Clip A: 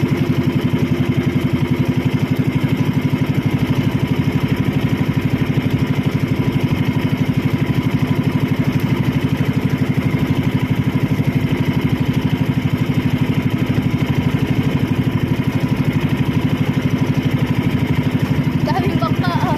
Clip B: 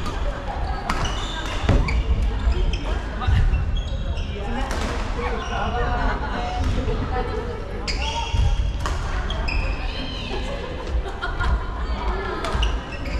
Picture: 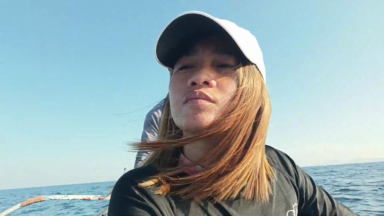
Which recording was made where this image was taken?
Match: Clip A